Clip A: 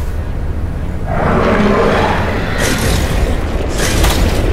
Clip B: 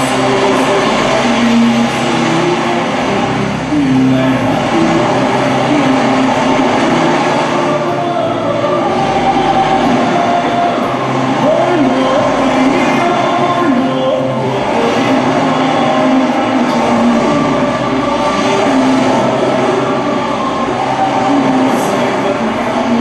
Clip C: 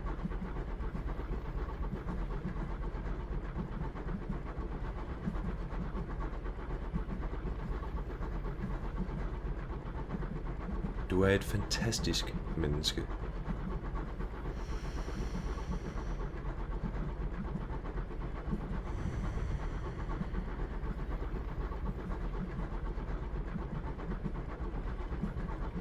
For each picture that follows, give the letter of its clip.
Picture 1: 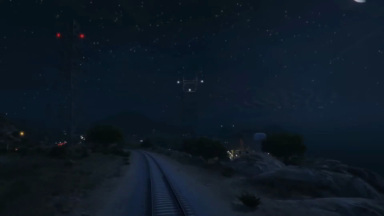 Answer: C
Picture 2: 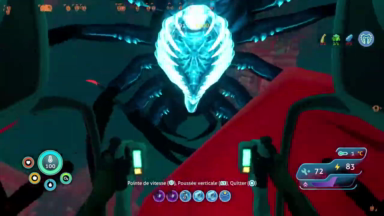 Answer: A